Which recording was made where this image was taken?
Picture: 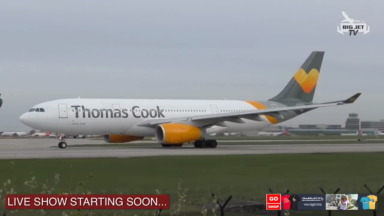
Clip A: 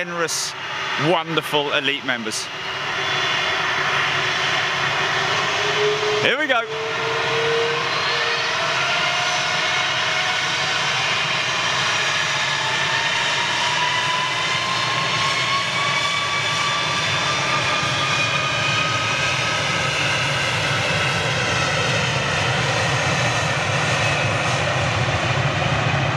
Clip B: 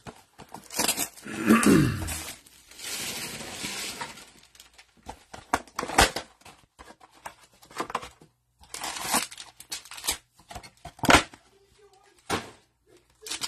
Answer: A